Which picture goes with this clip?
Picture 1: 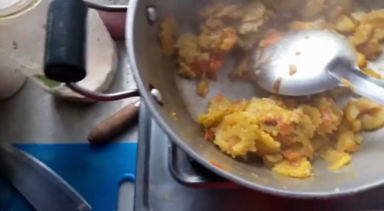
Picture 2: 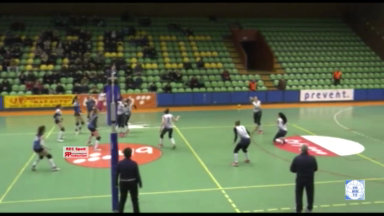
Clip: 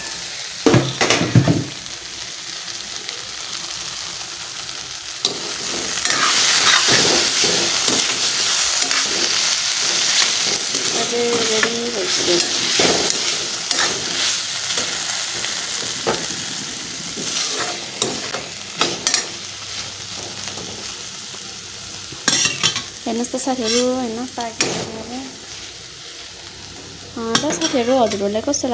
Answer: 1